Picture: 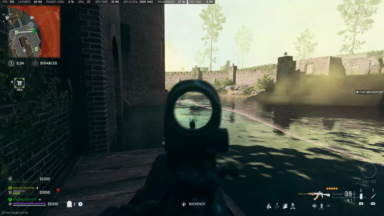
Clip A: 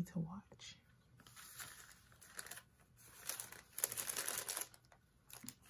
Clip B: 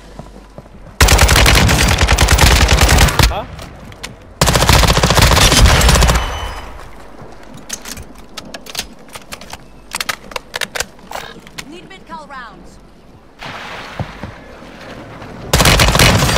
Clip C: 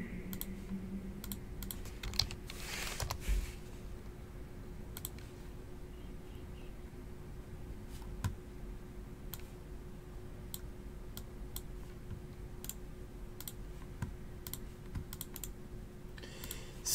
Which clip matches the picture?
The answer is B